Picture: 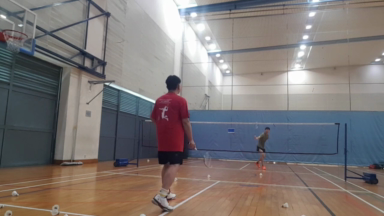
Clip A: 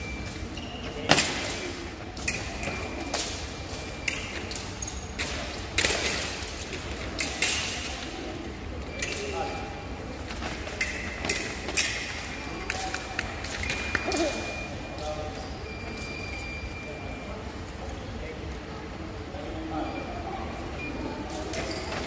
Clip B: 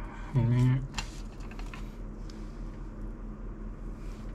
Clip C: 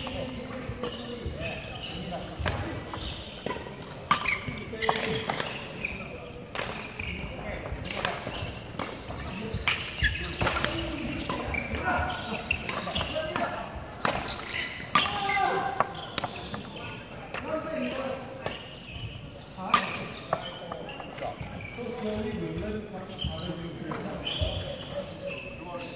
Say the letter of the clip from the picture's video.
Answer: C